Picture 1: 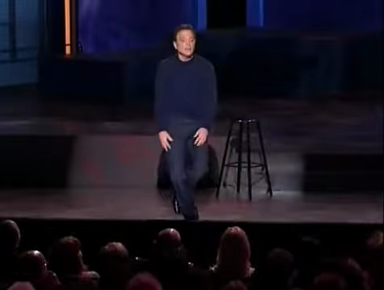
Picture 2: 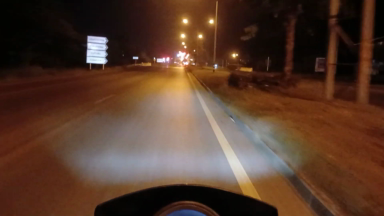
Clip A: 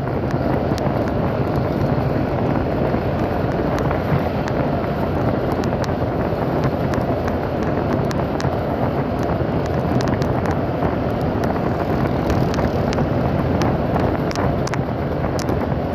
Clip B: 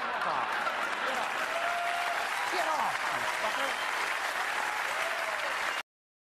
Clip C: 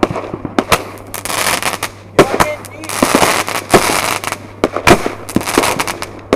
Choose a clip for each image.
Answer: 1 B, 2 A